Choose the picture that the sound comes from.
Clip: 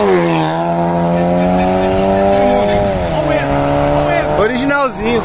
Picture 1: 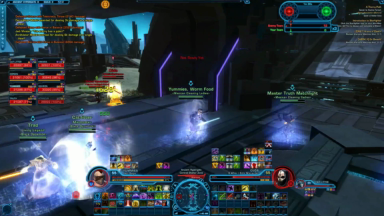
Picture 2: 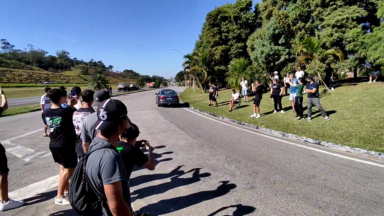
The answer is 2